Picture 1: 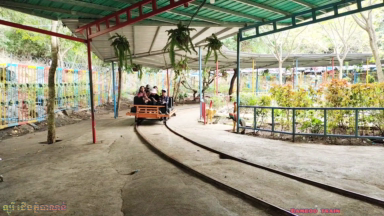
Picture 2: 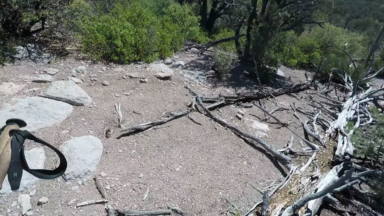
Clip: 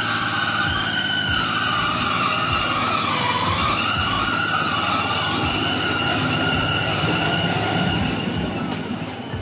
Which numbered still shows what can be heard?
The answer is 1